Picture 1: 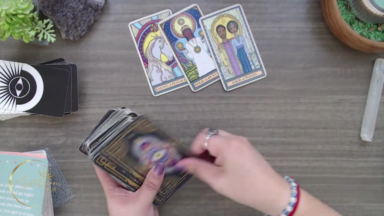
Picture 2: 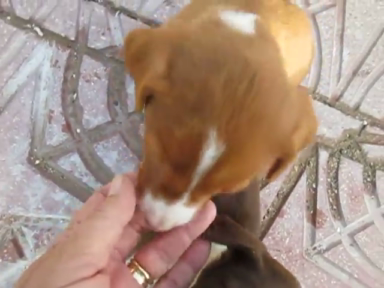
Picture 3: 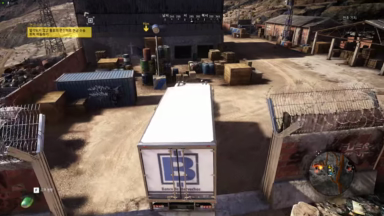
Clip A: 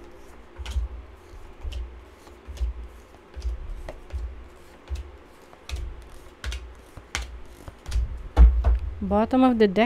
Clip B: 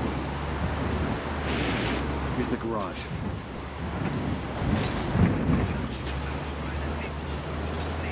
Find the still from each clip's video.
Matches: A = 1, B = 3